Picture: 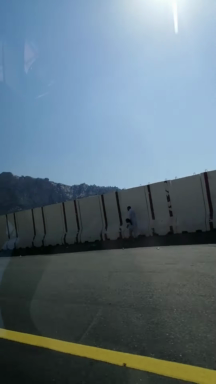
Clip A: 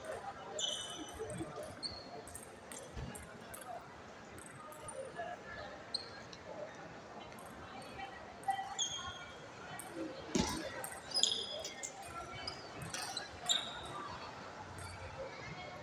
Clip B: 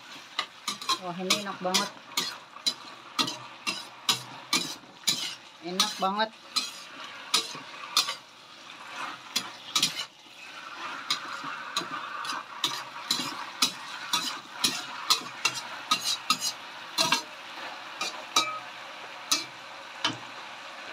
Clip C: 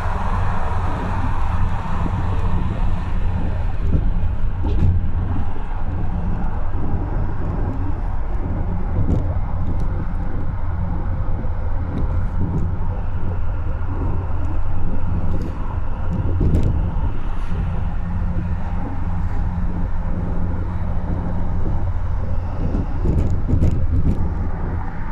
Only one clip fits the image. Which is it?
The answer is C